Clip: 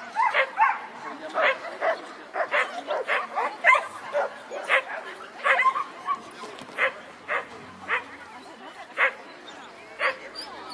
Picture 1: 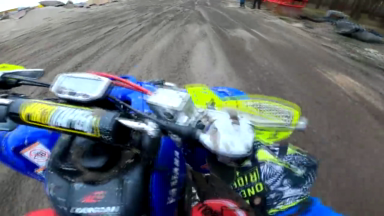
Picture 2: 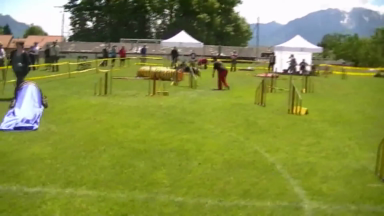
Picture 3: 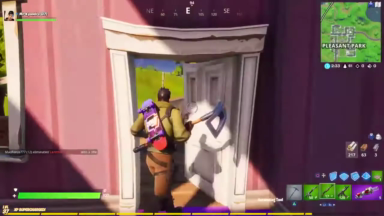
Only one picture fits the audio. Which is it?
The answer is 2